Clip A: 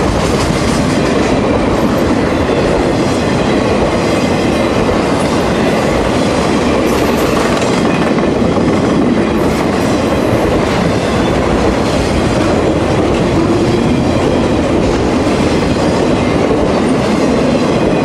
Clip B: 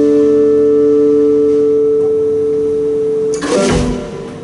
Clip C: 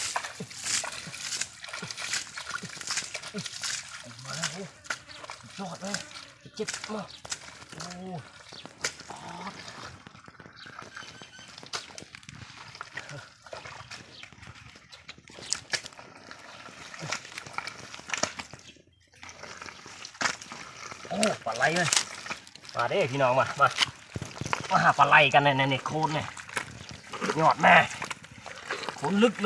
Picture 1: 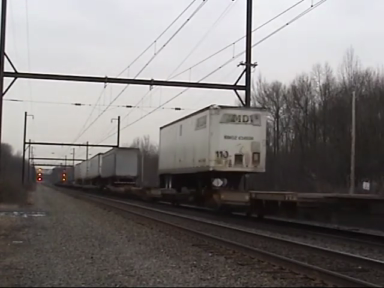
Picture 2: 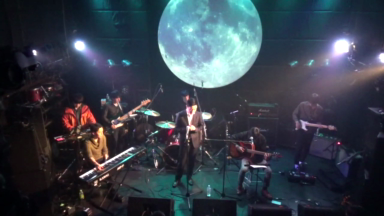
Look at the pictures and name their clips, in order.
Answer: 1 A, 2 B